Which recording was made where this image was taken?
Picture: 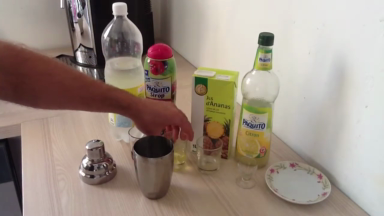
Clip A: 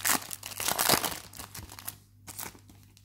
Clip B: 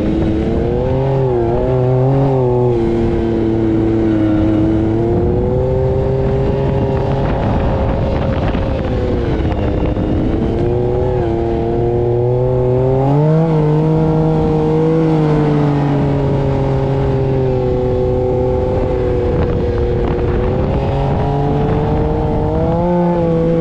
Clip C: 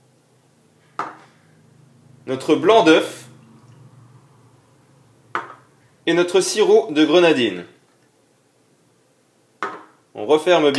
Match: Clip C